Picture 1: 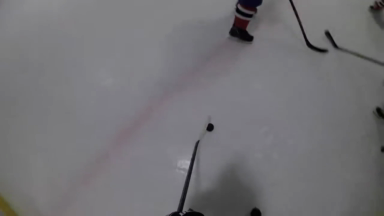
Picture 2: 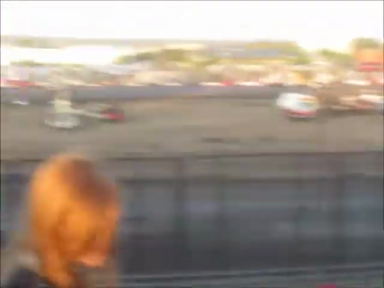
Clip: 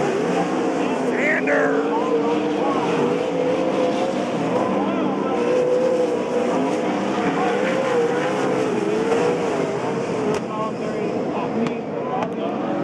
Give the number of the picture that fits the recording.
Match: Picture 2